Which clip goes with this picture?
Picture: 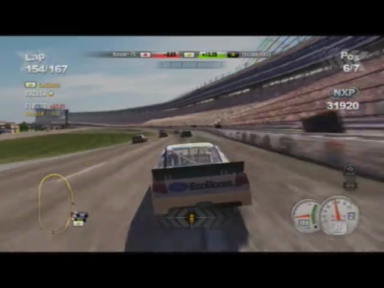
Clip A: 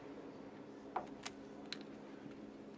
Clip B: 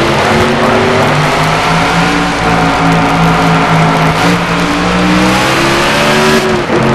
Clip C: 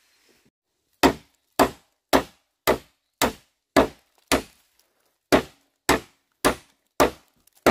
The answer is B